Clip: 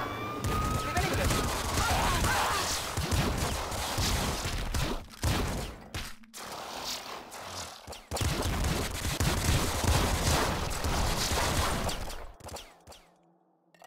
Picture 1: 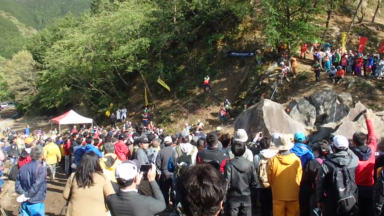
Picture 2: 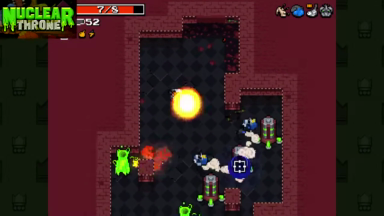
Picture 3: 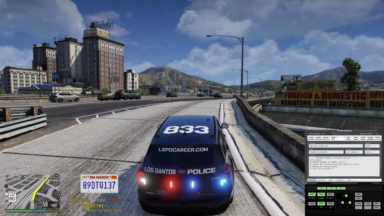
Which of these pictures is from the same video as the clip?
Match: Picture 2